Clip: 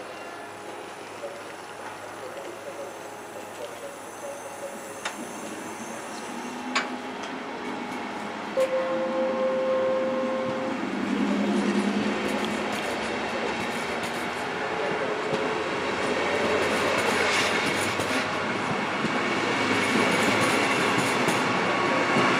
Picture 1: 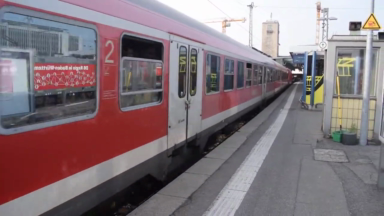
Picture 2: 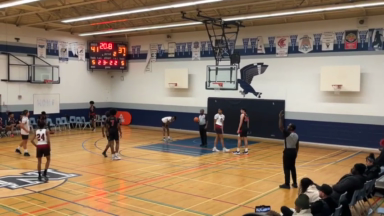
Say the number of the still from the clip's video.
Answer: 1